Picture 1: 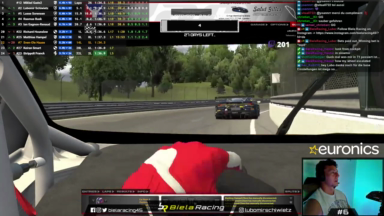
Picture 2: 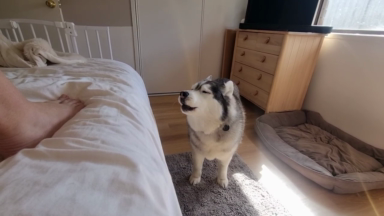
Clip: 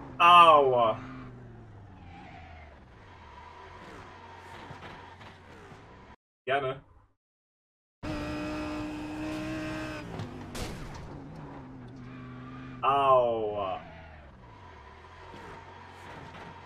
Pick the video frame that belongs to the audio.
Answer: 1